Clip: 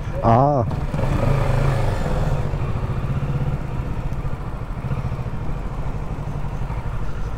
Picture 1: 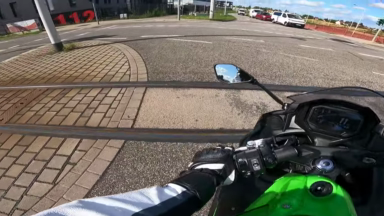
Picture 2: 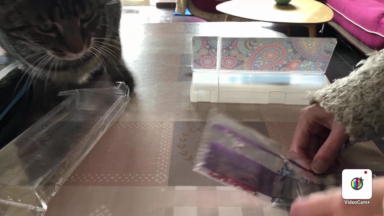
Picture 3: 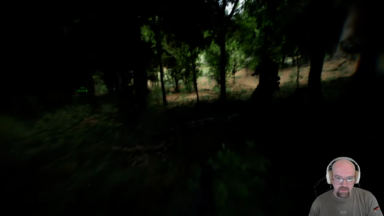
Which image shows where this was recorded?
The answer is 1